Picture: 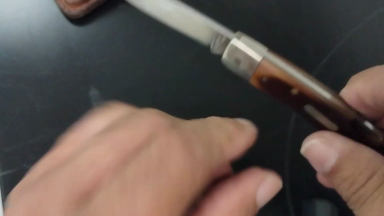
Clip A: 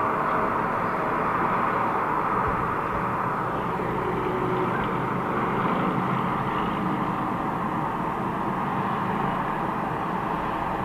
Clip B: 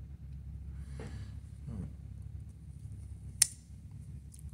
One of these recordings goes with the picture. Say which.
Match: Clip B